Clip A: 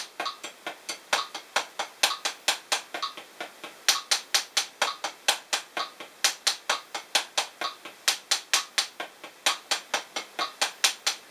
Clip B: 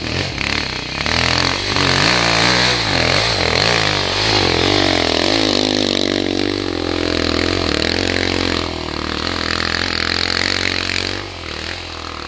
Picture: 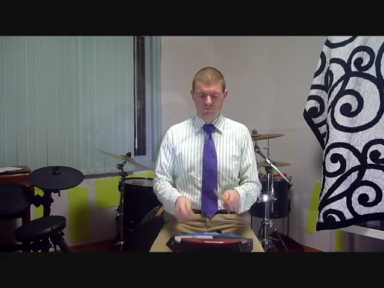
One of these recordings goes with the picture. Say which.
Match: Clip A